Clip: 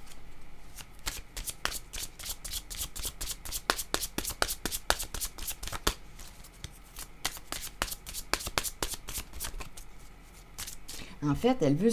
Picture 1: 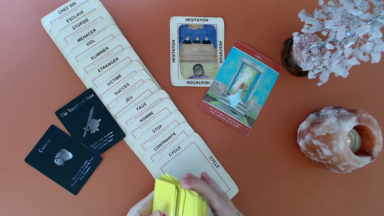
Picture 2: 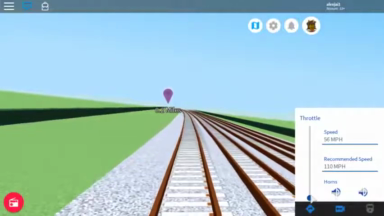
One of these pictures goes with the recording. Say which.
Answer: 1